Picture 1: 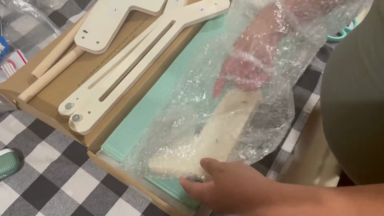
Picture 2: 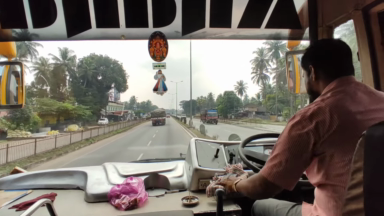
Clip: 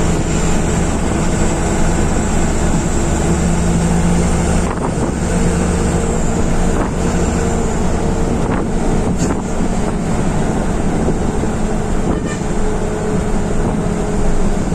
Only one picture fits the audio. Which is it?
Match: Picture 2